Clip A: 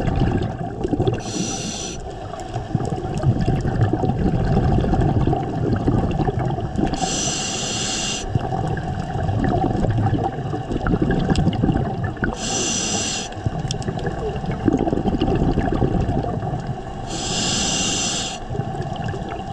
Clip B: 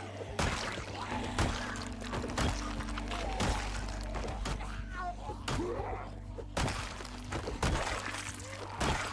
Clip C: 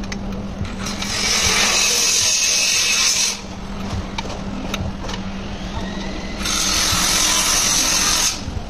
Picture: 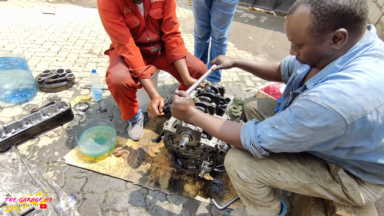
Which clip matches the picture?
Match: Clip C